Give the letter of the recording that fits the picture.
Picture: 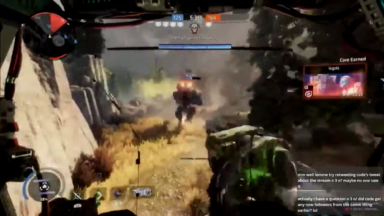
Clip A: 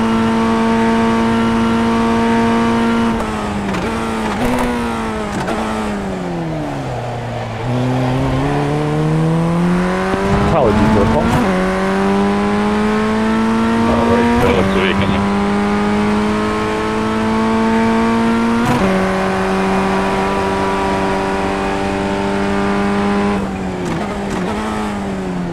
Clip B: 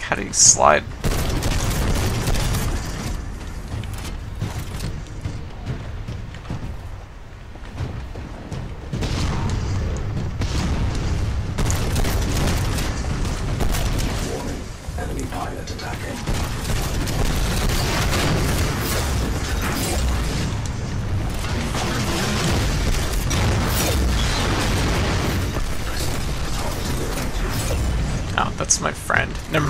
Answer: B